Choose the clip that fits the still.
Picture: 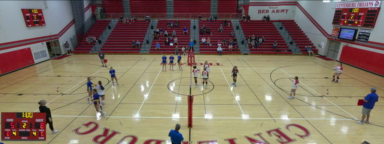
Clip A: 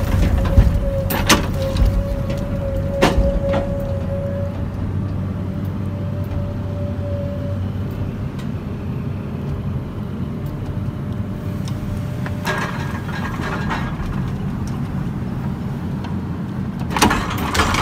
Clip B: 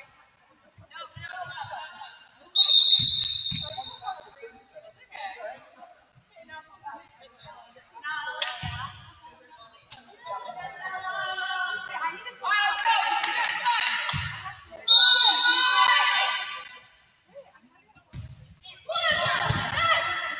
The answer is B